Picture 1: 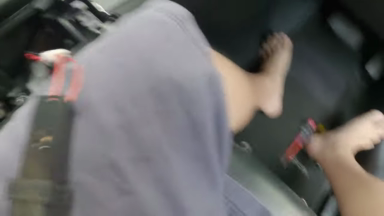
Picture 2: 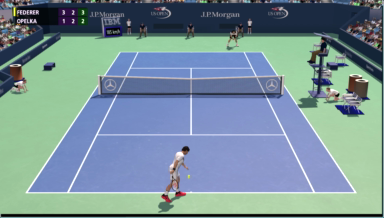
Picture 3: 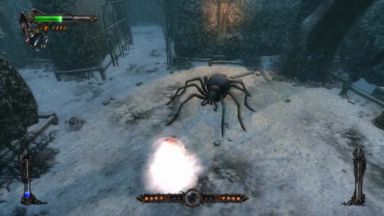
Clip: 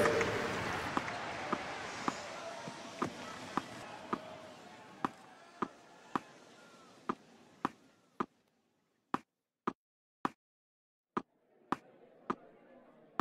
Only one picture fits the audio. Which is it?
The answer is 2